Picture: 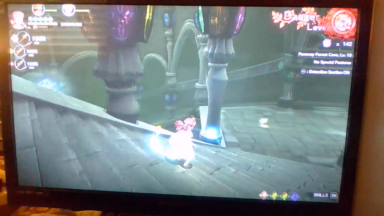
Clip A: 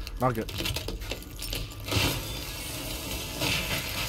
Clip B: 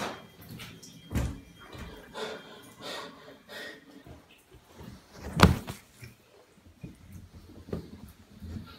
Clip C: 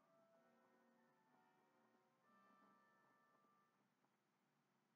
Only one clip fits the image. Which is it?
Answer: C